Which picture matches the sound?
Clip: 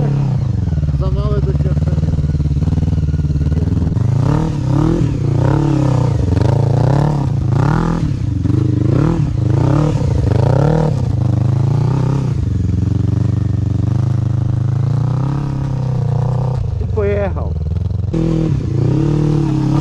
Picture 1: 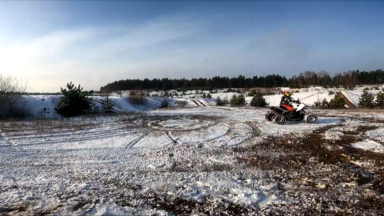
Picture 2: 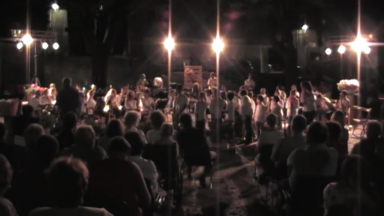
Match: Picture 1